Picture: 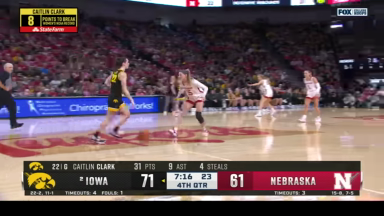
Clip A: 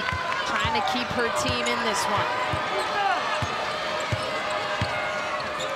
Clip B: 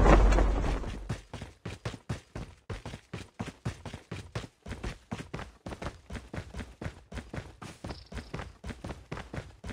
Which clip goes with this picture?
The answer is A